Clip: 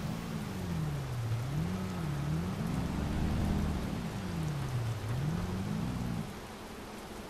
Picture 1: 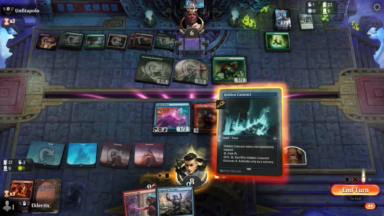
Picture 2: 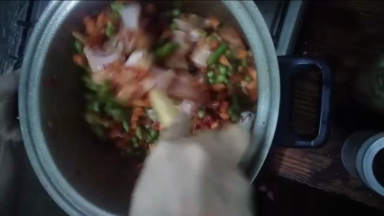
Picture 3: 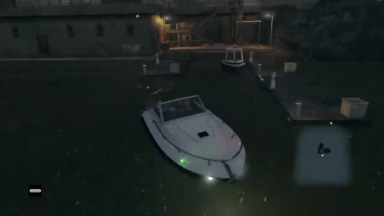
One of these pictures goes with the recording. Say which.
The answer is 3